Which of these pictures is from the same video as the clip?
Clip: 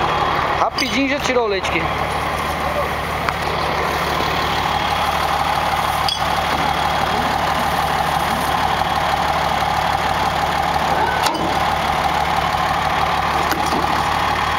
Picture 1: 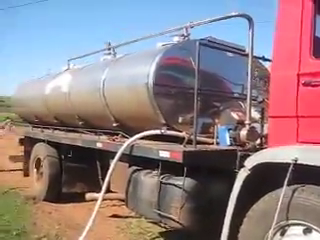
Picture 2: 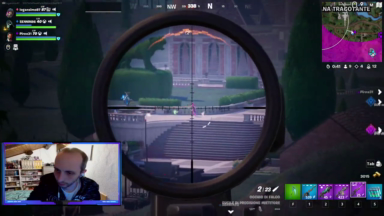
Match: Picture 1